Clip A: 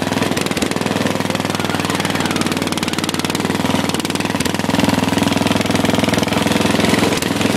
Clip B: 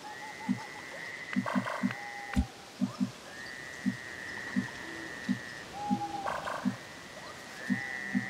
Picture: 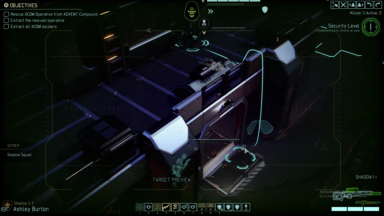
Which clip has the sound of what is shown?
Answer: B